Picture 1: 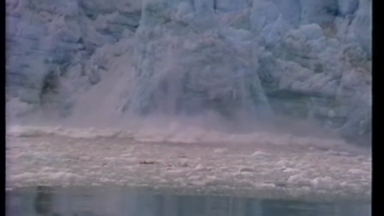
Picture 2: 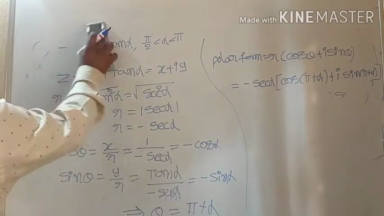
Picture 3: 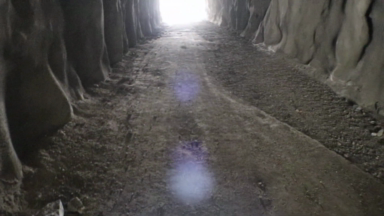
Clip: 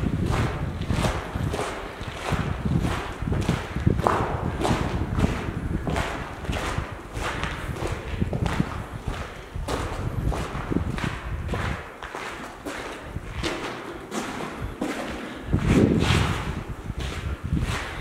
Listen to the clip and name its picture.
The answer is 3